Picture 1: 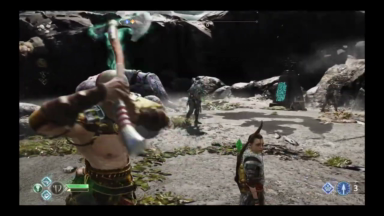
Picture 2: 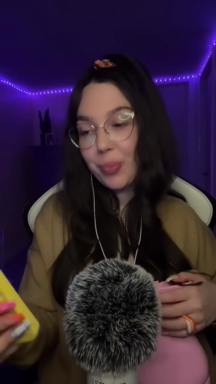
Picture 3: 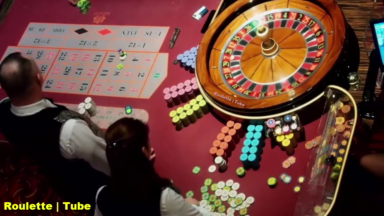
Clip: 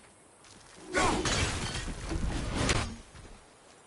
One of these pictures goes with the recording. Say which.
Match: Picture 1